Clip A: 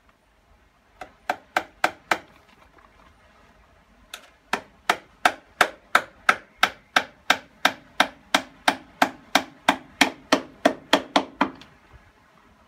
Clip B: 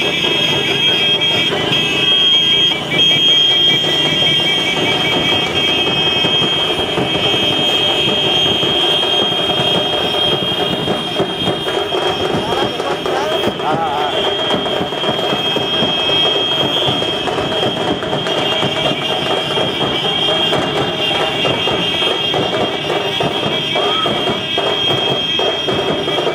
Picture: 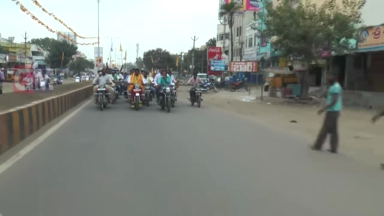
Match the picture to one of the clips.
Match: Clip B